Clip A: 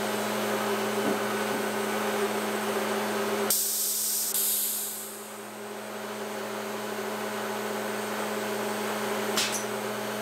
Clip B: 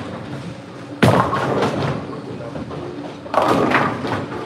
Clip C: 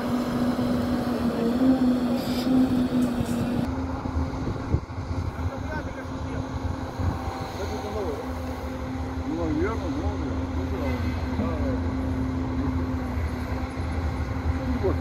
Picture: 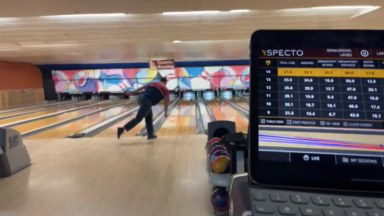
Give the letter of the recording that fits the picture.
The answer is B